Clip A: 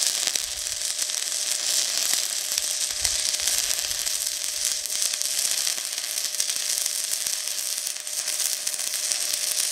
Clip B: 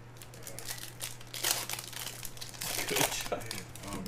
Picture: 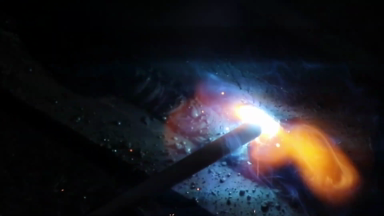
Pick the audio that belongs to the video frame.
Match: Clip A